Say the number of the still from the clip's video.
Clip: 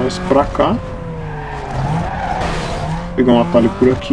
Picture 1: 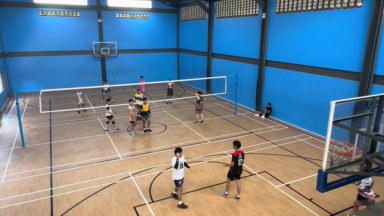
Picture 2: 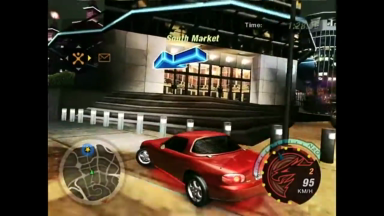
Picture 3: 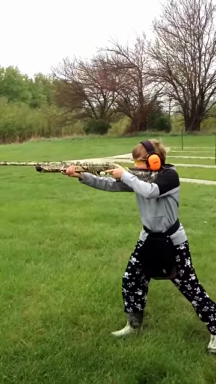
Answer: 2